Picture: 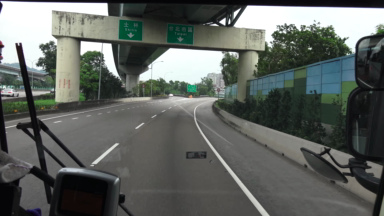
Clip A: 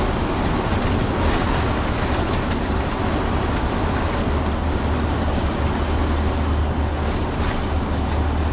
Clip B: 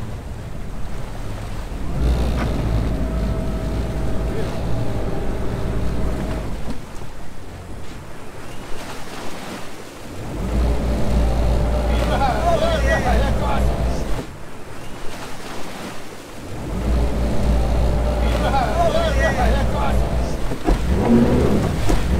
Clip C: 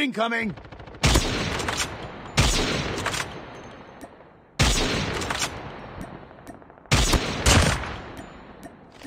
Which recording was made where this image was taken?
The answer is A